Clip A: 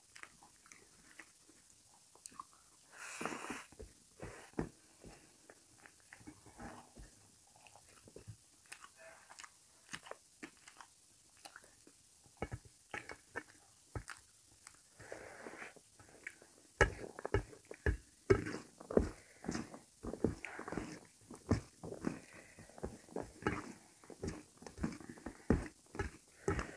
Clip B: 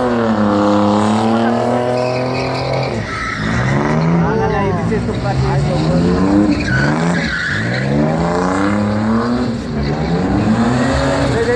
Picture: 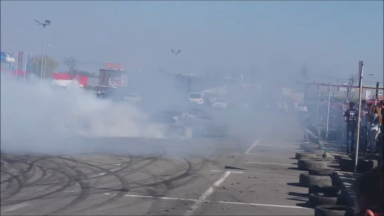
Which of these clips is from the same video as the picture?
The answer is B